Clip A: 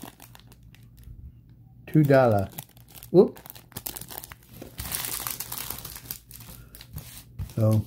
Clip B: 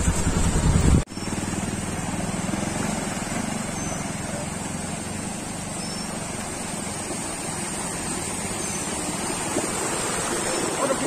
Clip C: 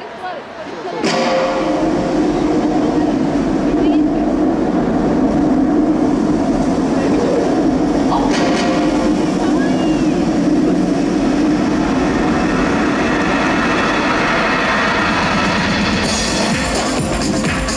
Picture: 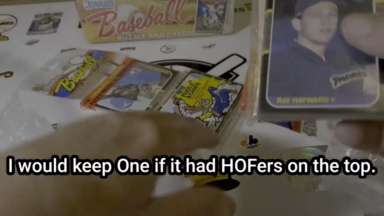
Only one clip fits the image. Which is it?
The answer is A